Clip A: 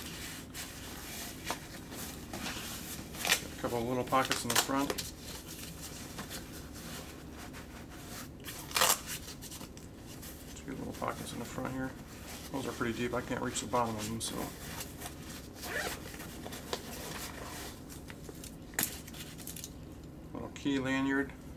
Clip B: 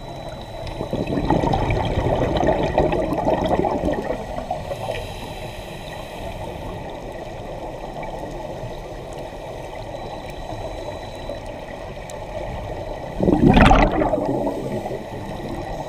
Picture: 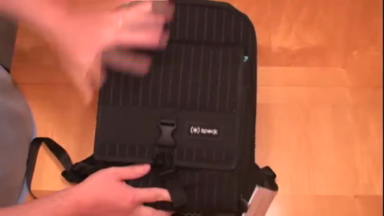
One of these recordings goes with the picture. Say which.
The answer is A